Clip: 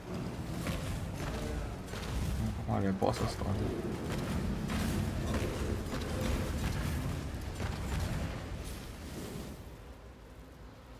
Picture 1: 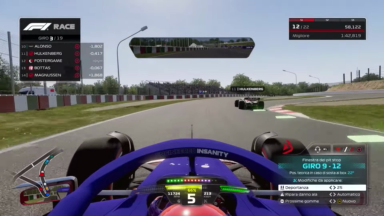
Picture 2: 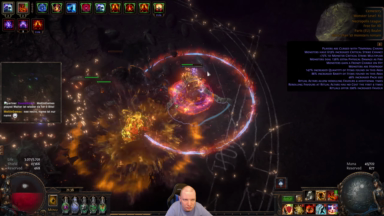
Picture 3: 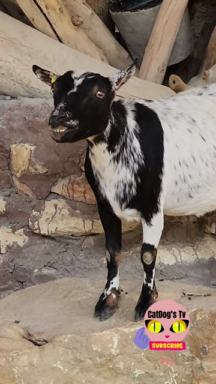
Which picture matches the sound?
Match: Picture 2